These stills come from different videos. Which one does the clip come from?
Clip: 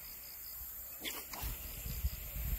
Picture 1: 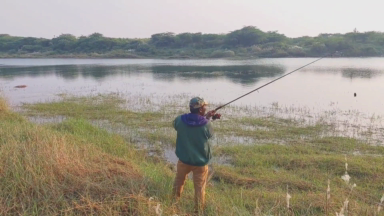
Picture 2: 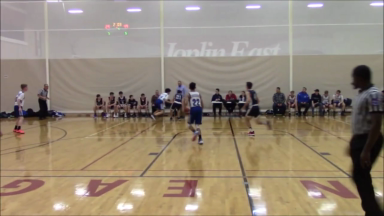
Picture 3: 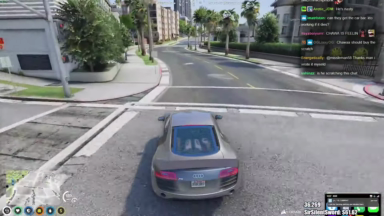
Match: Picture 1